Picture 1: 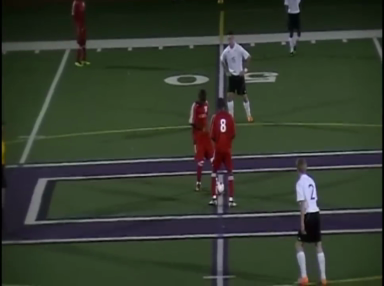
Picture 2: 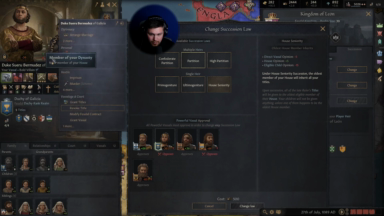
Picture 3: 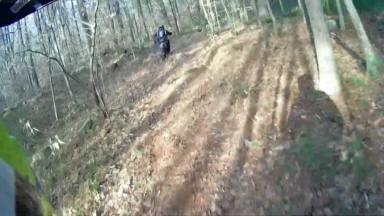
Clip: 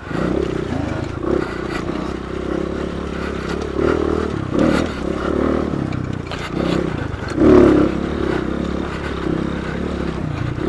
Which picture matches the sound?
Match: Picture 3